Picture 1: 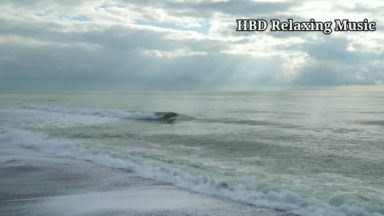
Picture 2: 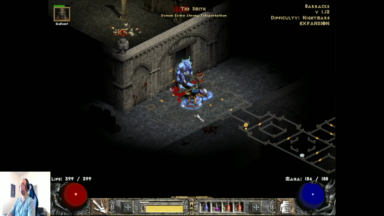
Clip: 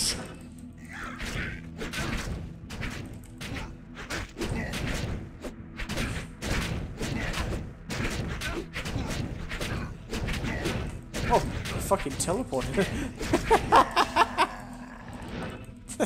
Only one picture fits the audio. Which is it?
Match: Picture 2